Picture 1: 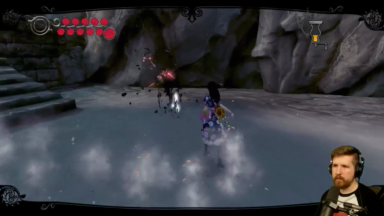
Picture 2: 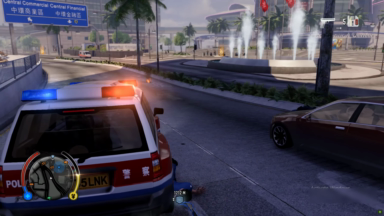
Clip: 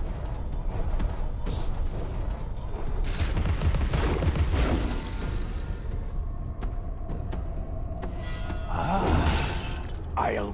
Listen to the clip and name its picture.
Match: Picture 1